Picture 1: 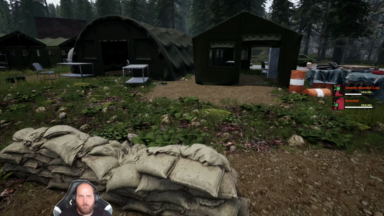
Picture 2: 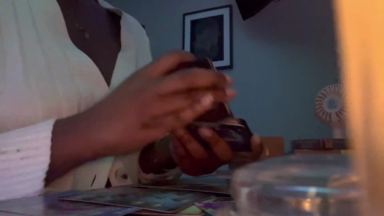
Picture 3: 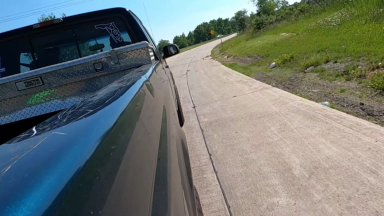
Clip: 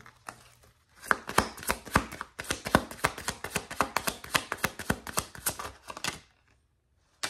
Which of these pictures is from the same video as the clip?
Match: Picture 2